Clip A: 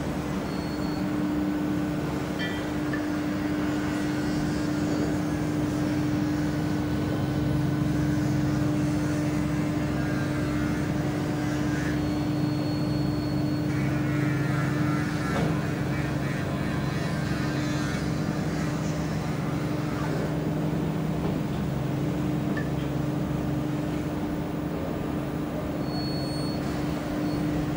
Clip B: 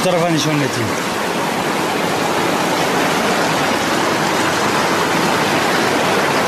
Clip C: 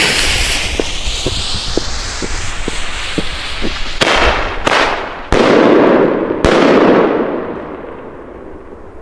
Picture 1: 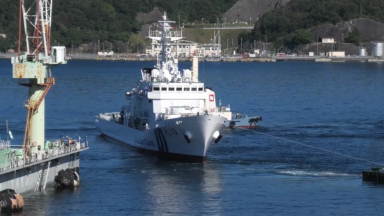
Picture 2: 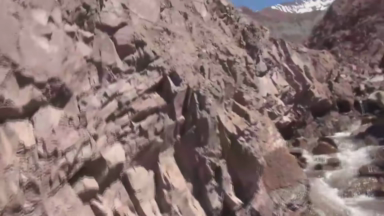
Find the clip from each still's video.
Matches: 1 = A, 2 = B